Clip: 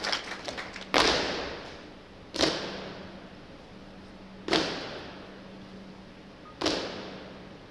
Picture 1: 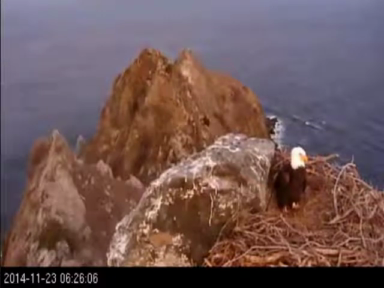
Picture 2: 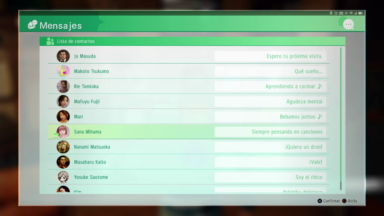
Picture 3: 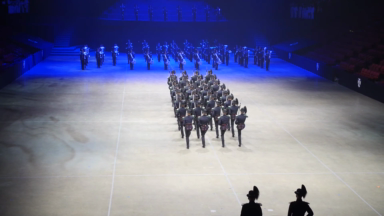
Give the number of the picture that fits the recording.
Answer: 3